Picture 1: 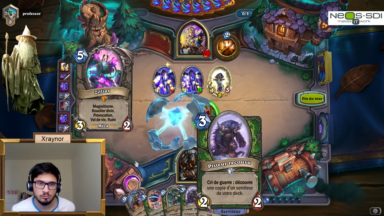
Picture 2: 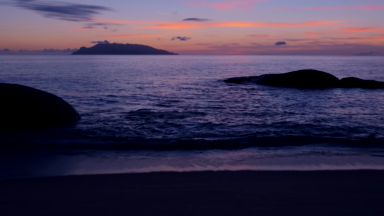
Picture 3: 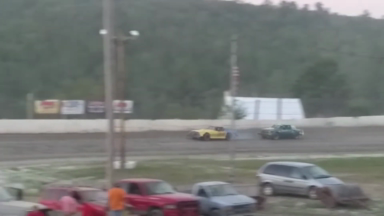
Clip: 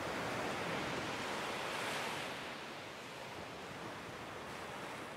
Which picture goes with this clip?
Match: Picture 2